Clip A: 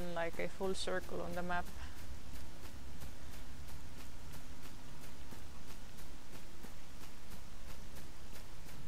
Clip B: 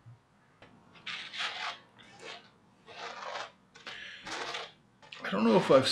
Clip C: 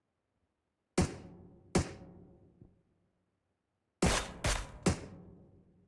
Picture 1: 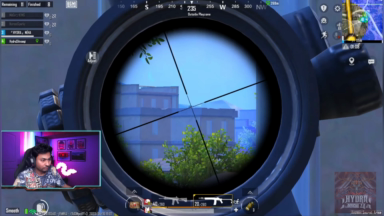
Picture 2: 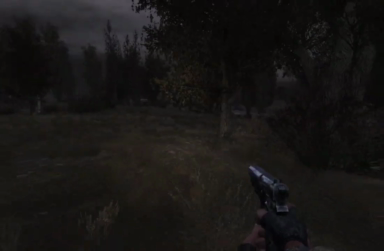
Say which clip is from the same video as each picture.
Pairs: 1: C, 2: A